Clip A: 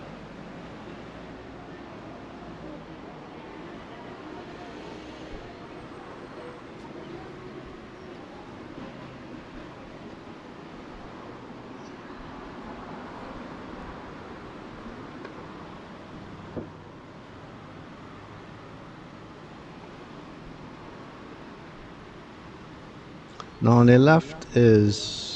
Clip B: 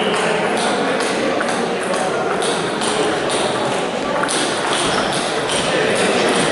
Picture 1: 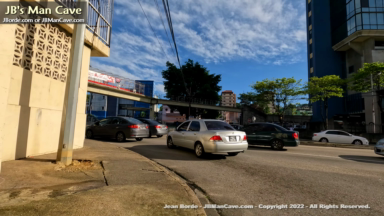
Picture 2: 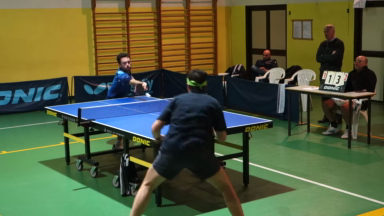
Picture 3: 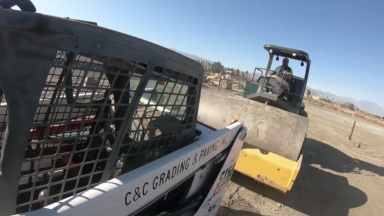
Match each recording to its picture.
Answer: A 1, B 2